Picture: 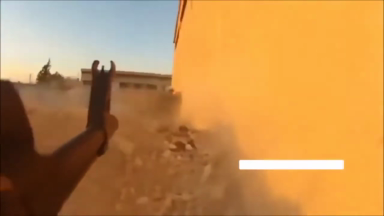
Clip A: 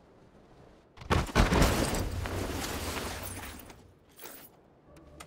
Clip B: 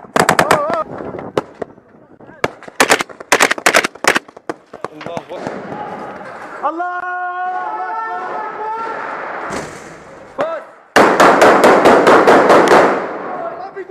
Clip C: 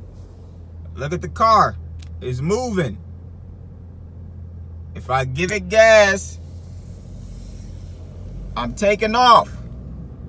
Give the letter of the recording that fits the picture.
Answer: B